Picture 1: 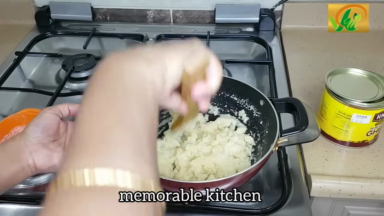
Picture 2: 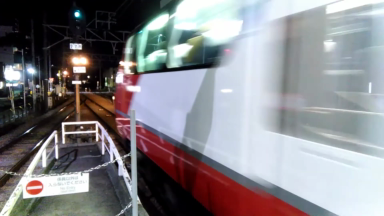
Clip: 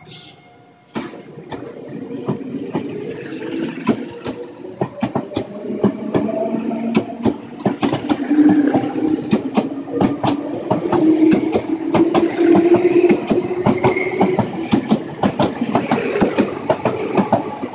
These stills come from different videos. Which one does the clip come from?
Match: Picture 2